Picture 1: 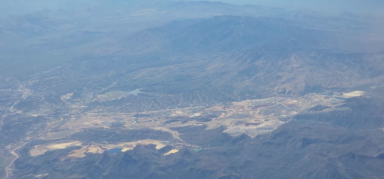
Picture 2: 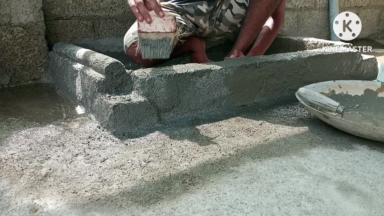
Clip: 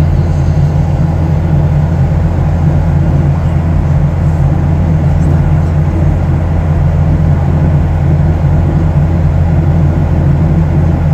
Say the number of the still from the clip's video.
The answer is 1